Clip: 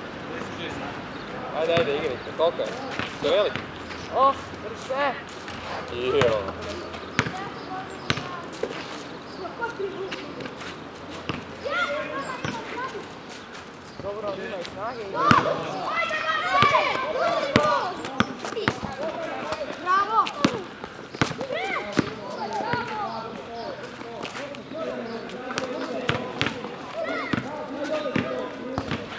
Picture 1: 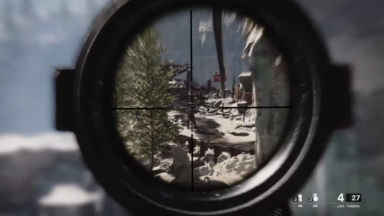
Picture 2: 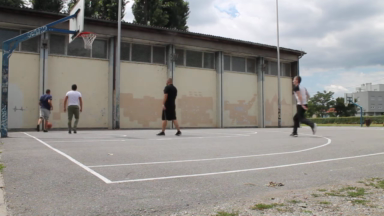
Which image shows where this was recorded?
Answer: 2